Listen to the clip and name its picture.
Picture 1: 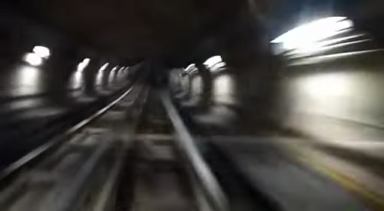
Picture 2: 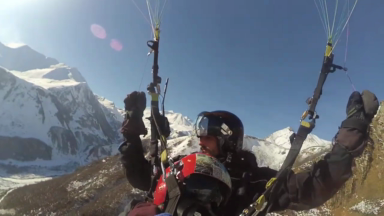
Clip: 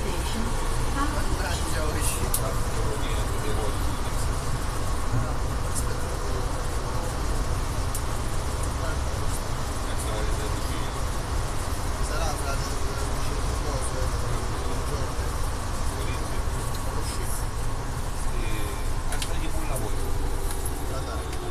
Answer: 1